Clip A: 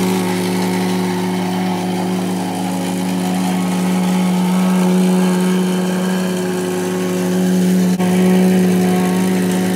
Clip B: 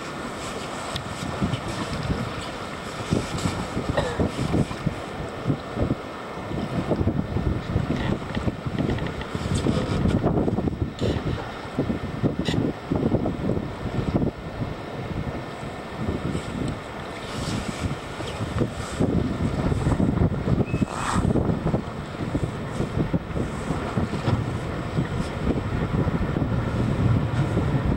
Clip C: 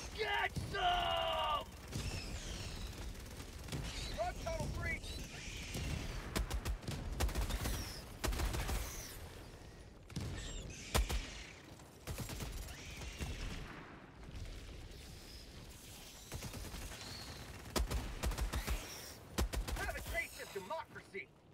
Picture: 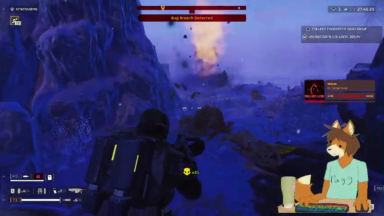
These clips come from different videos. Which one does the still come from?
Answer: C